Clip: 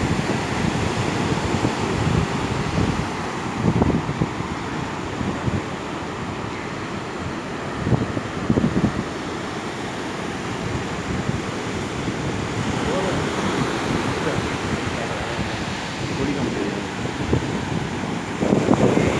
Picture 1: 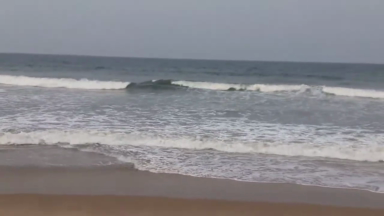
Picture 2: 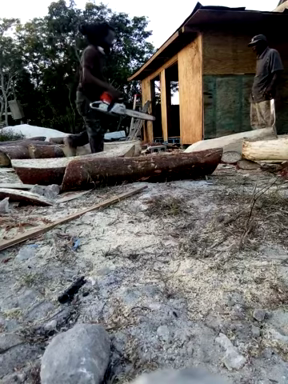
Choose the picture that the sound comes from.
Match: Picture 1